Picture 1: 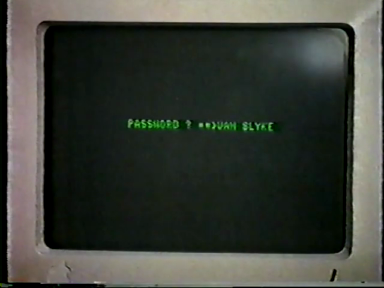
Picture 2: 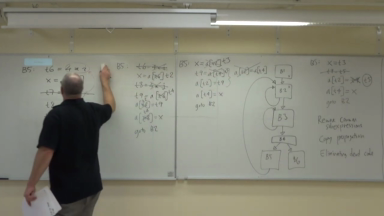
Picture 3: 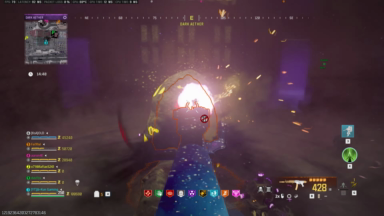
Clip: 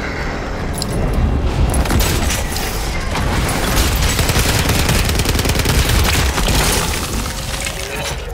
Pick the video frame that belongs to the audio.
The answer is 3